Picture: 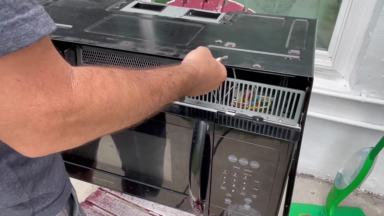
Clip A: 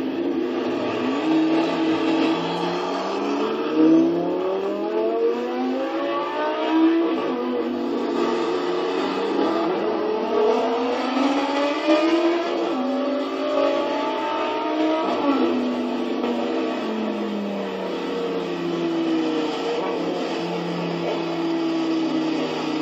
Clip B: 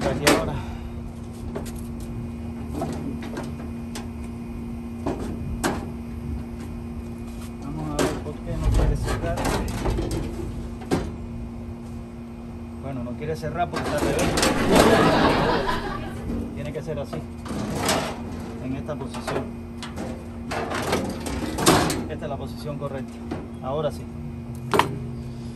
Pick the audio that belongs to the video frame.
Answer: B